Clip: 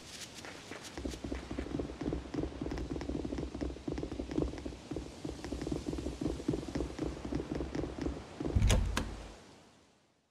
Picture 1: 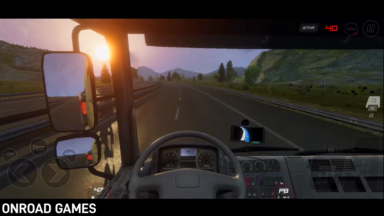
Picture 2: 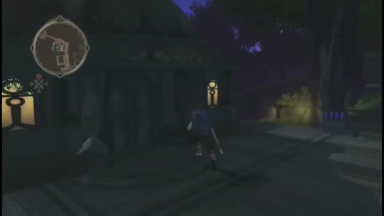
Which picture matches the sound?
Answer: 2